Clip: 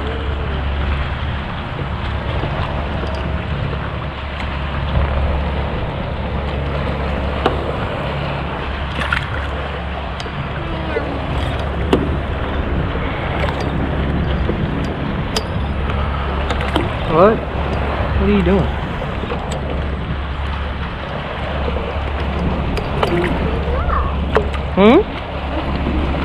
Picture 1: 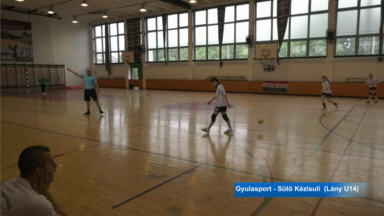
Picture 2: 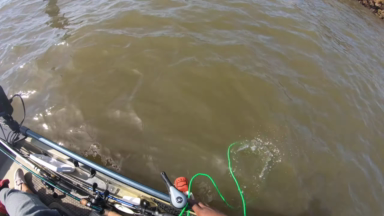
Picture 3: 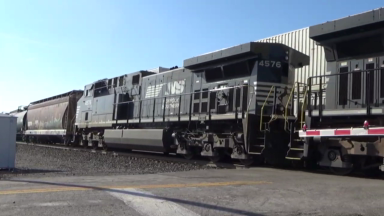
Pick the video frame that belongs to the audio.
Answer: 2